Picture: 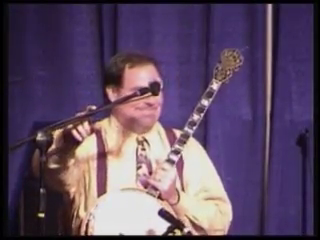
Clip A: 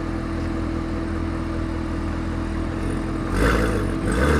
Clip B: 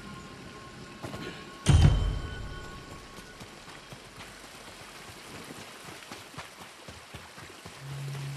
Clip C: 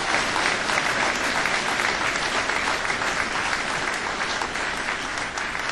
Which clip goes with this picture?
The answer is C